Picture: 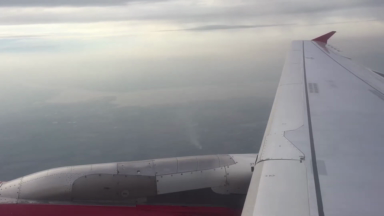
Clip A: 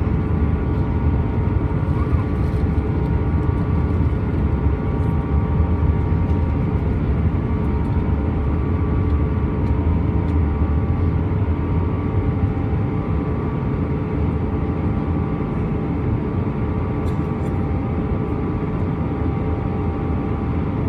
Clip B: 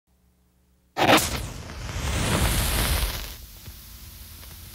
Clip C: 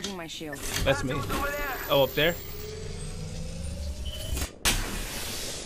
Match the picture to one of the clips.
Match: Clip A